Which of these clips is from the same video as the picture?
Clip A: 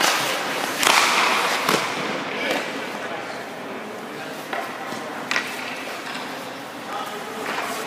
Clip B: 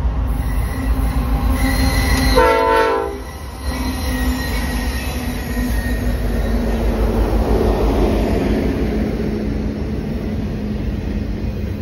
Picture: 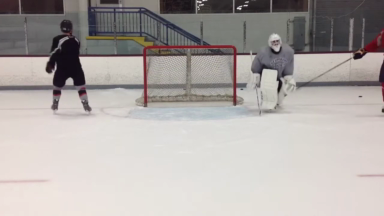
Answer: A